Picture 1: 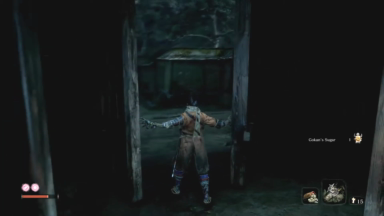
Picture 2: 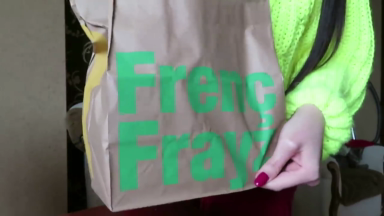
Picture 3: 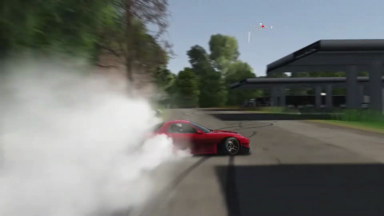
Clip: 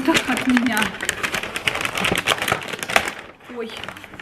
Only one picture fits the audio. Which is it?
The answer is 2